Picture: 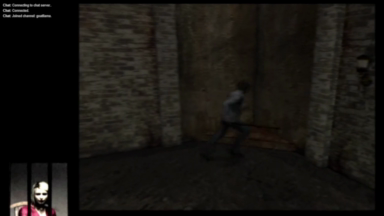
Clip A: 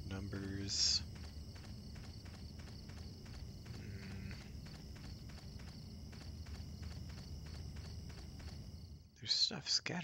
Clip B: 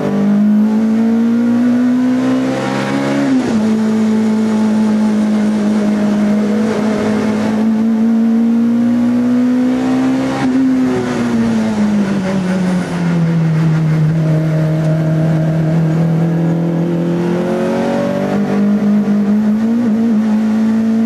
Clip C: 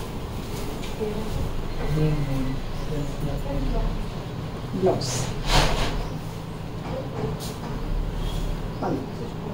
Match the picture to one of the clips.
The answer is A